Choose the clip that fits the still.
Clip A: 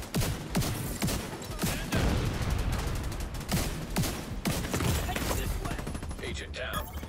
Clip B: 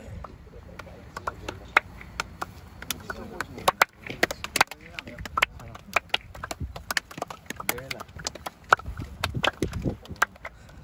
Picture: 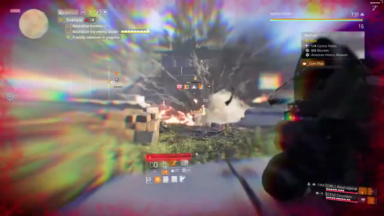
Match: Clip A